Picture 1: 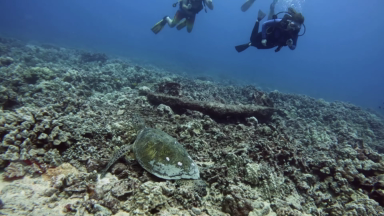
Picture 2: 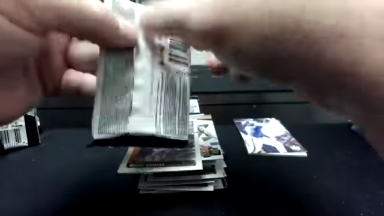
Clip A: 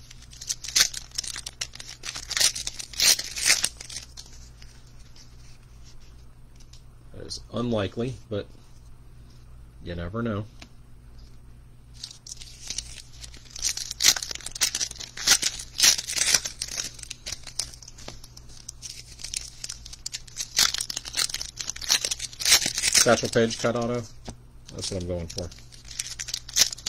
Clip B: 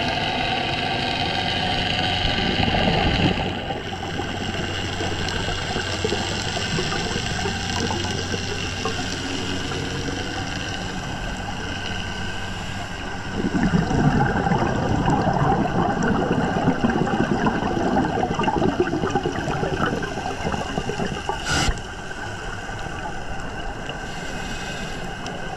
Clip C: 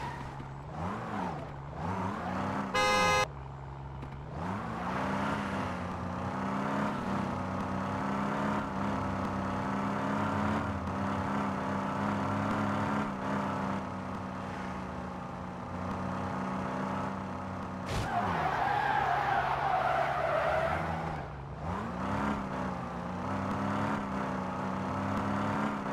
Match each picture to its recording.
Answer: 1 B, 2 A